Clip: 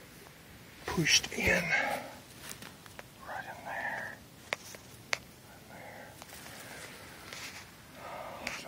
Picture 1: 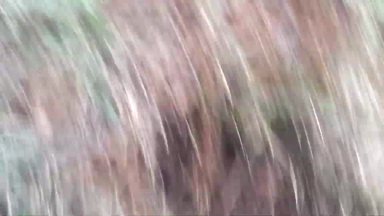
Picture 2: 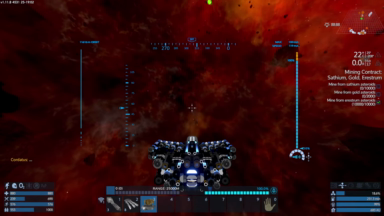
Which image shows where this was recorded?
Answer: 1